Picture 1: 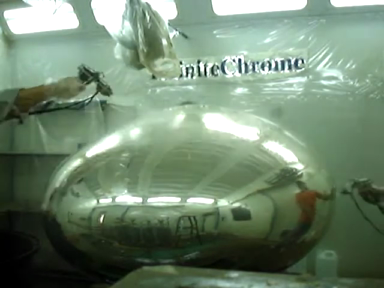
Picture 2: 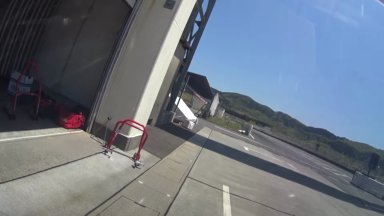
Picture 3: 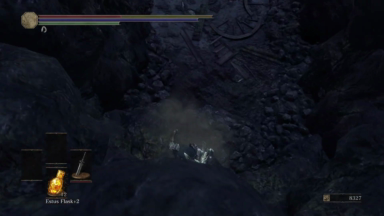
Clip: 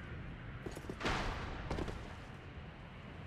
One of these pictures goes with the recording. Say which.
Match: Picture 3